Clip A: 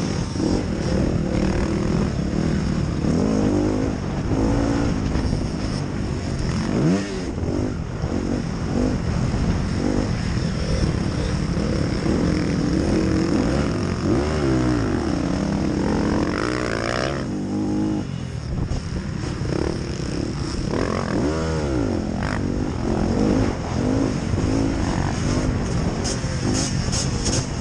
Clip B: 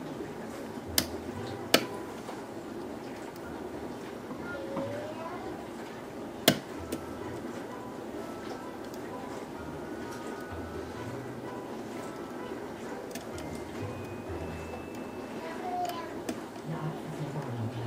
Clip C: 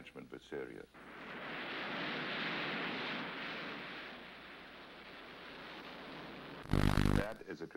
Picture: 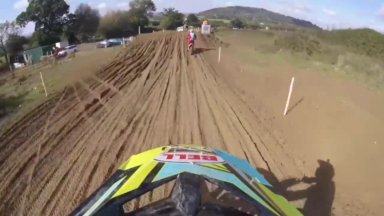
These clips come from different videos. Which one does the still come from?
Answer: A